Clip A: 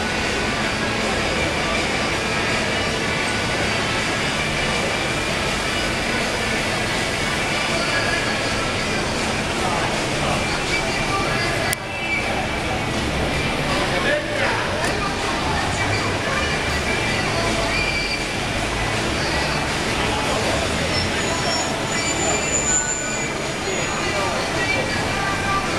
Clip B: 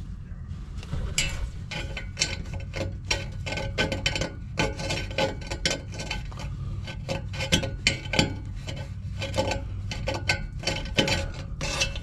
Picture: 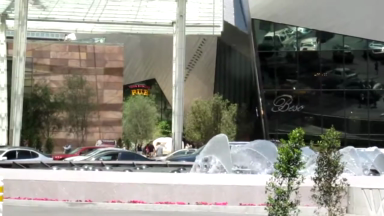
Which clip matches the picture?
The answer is A